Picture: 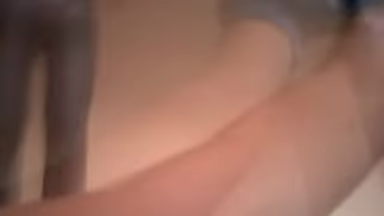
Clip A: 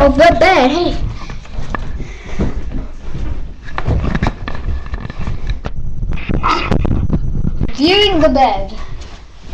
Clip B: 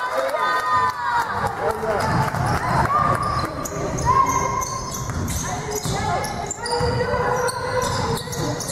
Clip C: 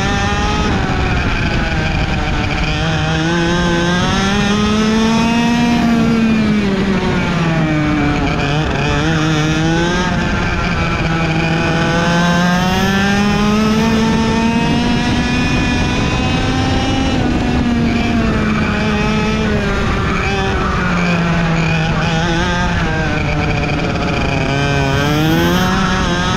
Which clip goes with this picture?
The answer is A